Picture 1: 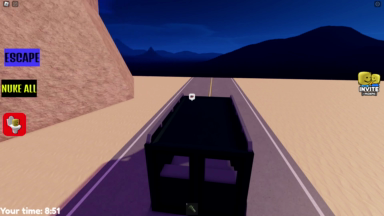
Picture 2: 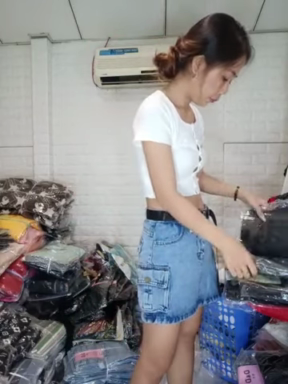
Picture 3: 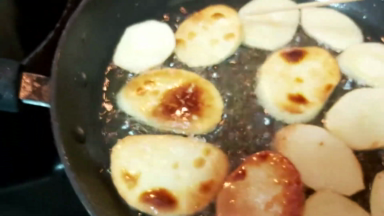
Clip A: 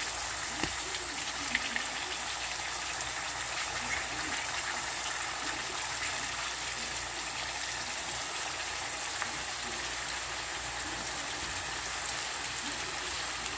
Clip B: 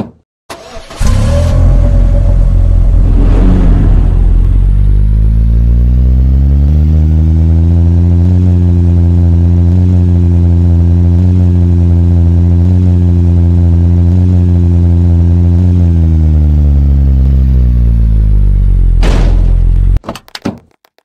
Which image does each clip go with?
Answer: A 3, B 1